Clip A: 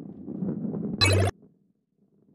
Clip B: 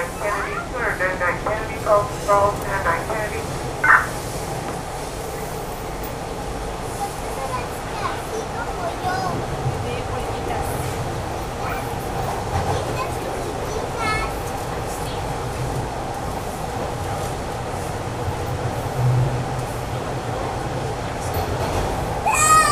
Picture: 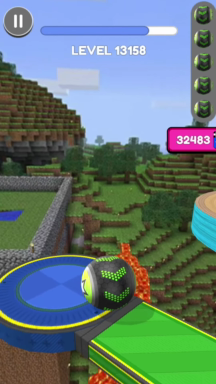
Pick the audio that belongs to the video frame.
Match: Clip A